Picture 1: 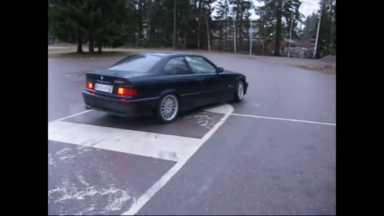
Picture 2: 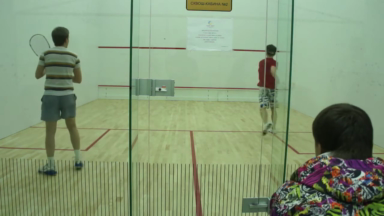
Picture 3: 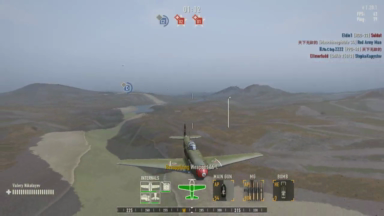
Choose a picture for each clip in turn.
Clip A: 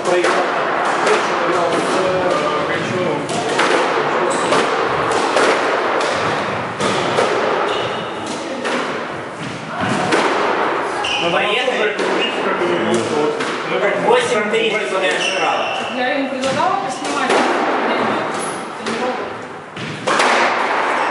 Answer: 2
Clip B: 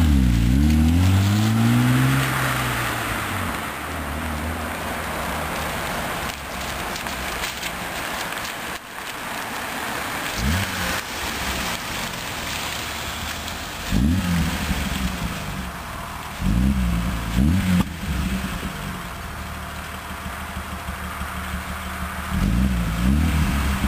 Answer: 1